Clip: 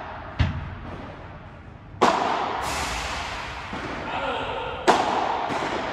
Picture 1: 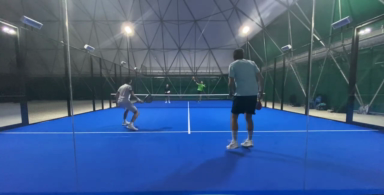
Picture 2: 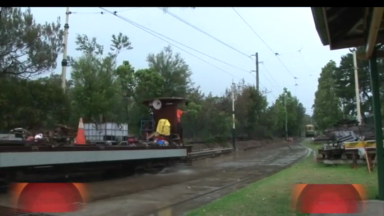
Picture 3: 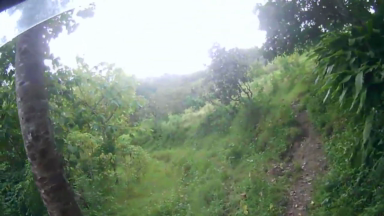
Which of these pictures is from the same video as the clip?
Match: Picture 1